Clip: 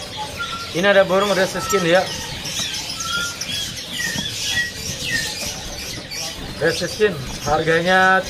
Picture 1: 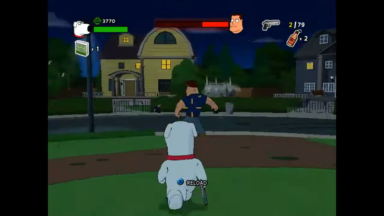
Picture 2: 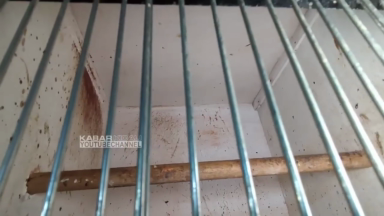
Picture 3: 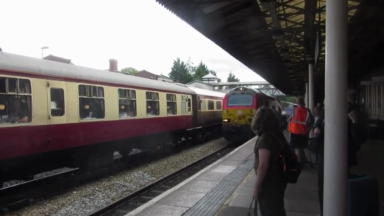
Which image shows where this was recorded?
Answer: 2